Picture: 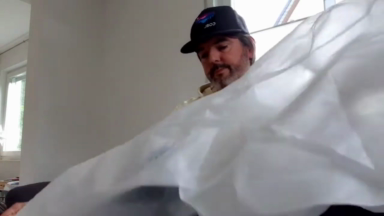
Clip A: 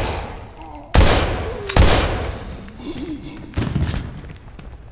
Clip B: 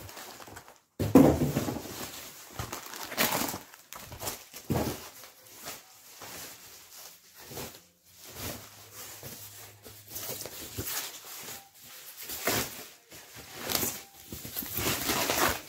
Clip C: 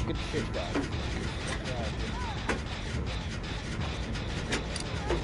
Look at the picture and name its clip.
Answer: B